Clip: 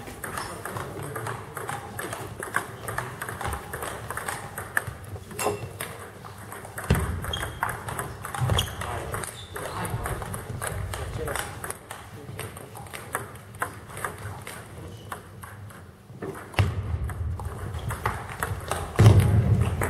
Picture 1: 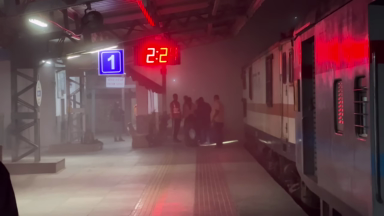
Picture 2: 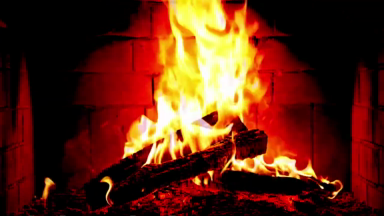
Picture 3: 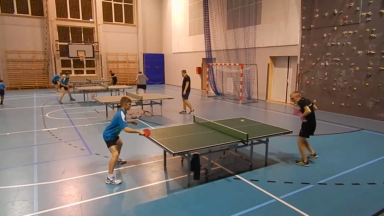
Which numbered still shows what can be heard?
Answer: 3